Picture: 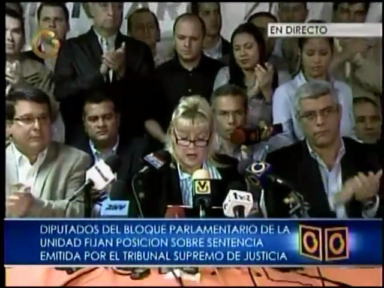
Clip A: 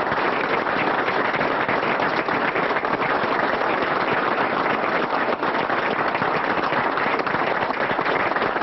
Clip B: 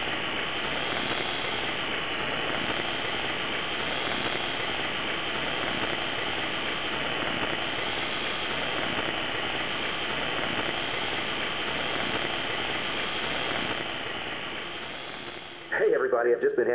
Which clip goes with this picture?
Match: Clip A